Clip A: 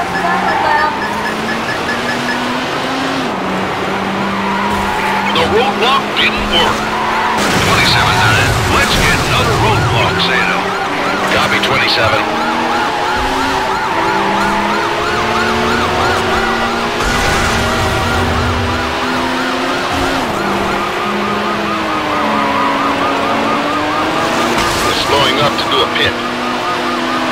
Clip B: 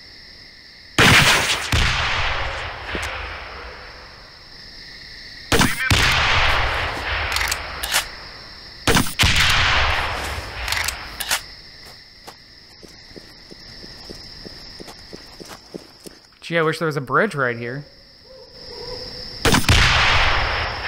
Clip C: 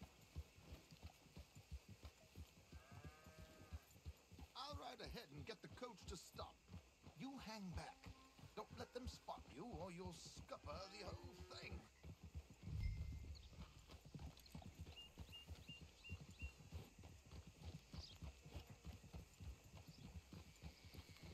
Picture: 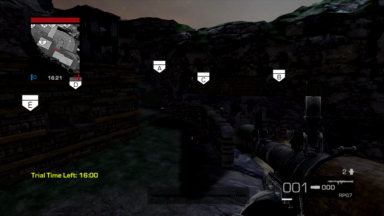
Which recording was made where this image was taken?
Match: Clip B